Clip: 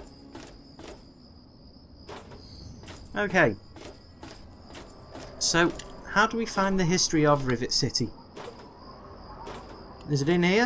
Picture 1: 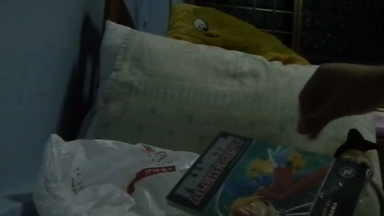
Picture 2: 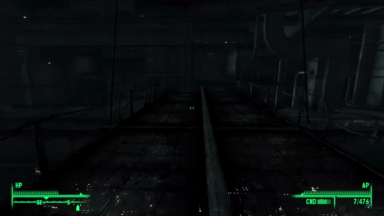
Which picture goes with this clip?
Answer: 2